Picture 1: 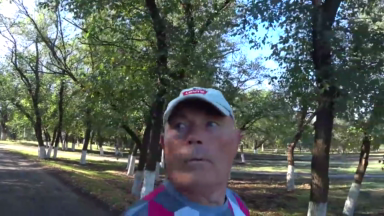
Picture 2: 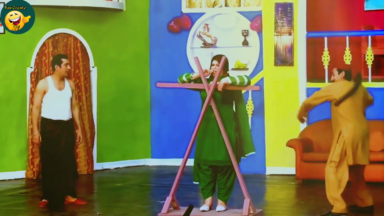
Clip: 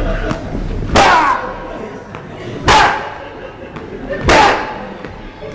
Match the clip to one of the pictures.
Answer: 2